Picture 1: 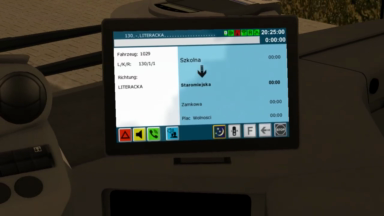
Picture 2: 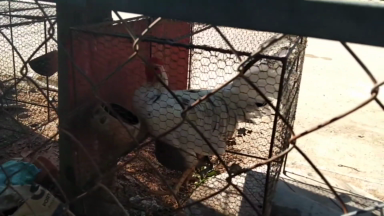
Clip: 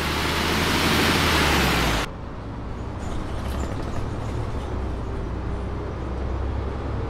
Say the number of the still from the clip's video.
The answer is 1